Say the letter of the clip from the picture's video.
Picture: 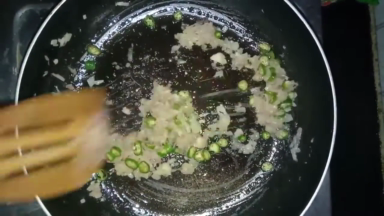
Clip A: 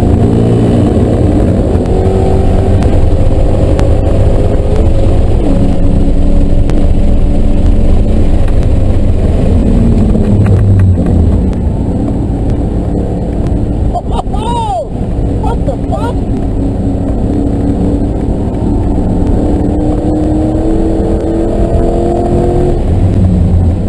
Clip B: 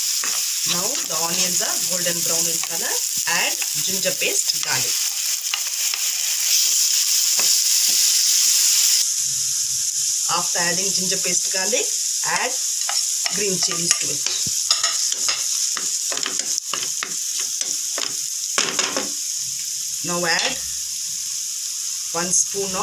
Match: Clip B